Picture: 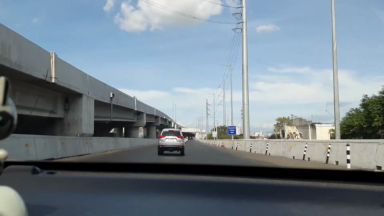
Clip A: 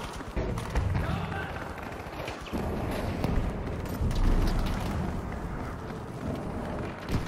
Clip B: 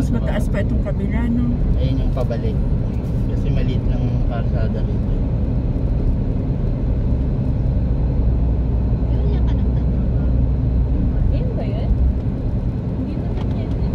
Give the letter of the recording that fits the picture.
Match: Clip B